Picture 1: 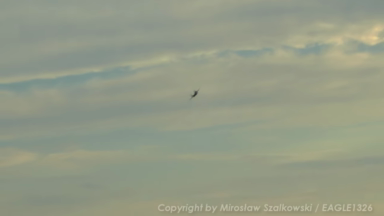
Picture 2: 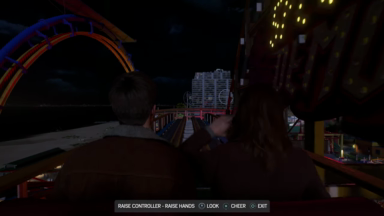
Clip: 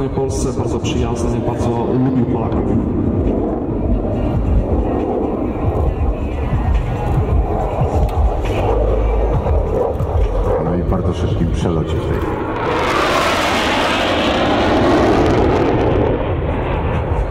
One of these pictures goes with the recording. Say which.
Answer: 1